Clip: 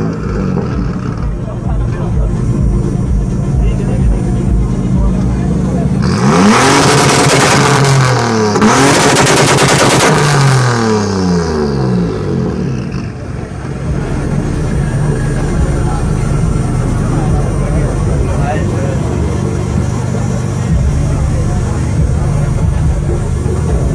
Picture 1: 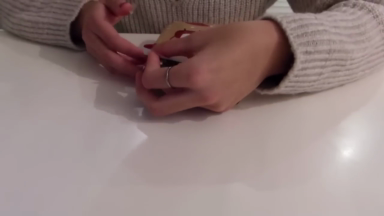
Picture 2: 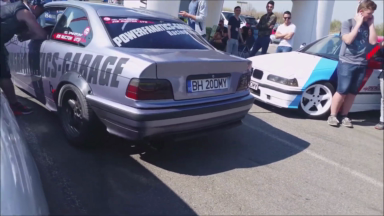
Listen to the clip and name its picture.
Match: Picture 2